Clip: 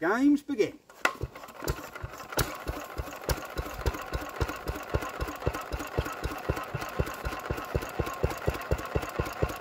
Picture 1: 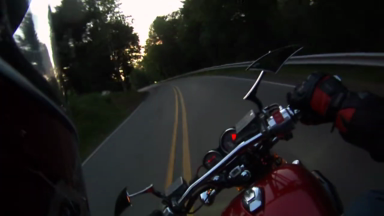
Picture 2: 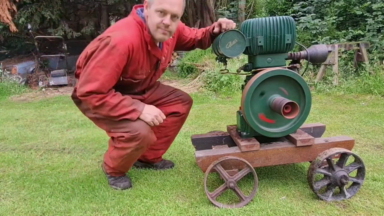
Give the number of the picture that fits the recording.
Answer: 2